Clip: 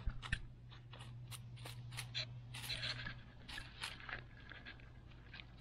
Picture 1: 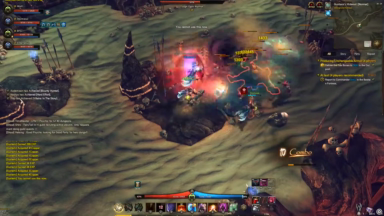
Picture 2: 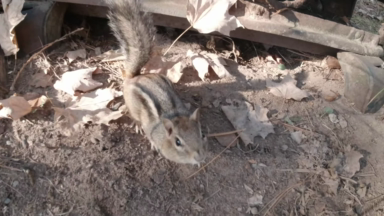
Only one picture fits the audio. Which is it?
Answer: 2